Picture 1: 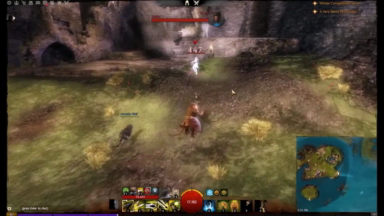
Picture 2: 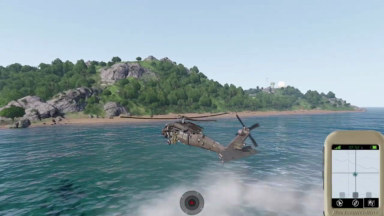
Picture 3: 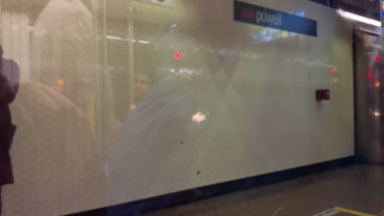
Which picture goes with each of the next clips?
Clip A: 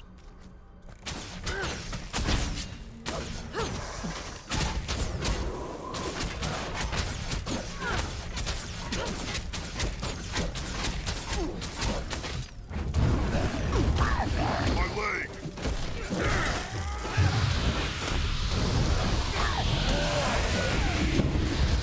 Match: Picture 1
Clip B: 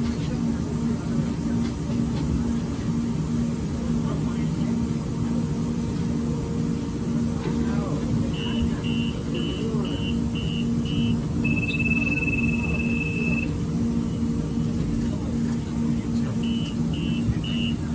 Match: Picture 3